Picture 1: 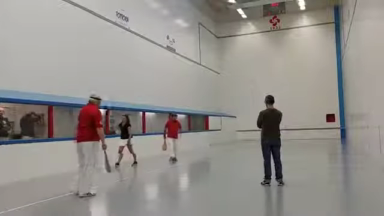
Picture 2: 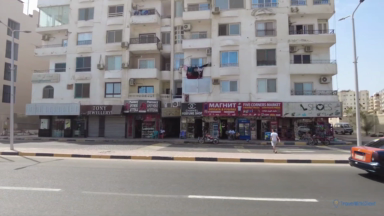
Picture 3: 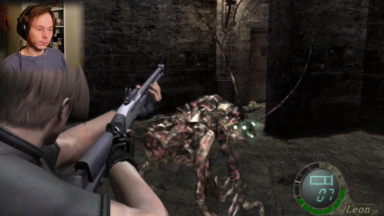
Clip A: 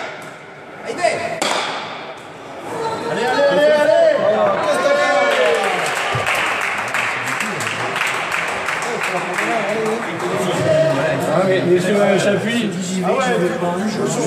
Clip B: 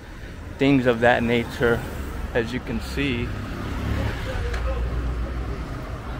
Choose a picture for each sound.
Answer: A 1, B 2